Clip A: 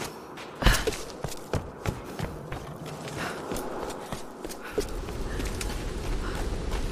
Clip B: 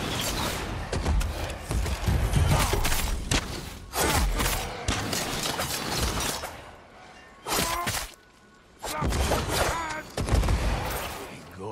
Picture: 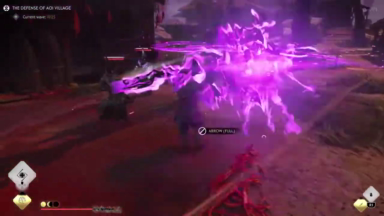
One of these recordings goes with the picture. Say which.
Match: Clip B